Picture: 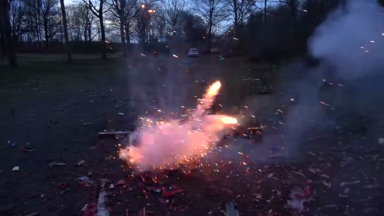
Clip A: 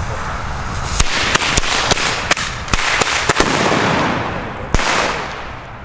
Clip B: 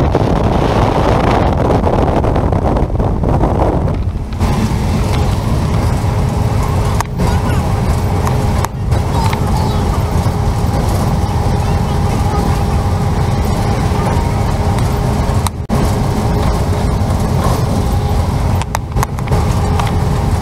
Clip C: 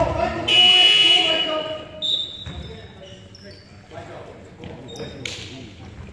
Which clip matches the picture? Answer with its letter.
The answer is A